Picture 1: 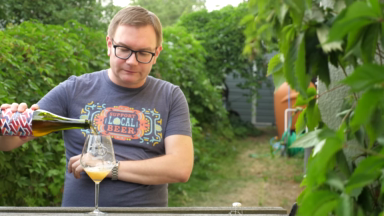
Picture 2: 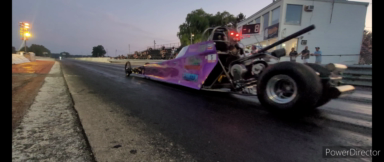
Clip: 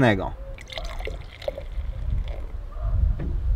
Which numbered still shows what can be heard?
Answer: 1